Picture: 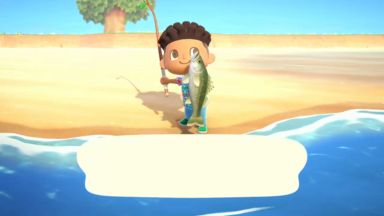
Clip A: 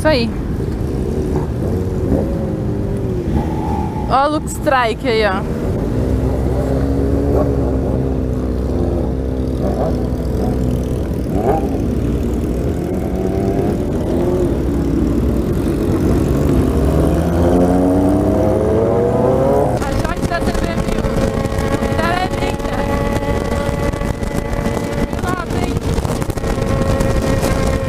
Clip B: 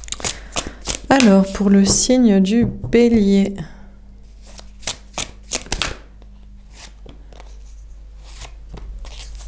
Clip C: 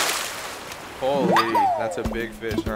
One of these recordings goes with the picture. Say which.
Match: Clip C